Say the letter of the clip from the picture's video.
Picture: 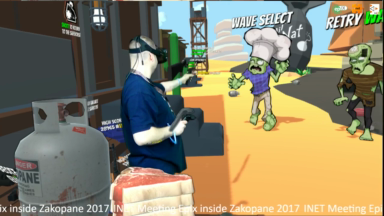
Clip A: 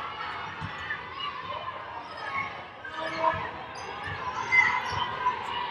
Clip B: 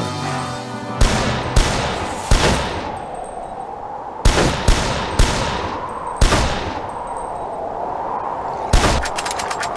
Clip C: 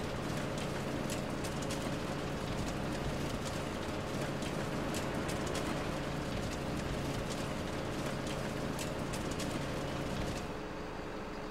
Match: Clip B